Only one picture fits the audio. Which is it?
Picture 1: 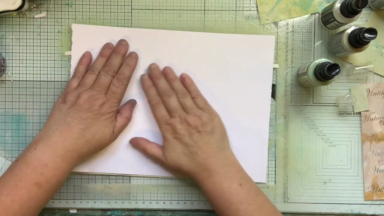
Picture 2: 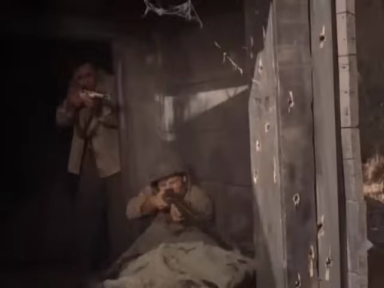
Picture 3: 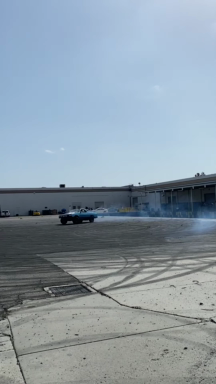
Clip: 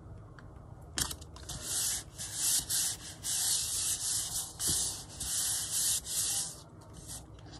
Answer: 1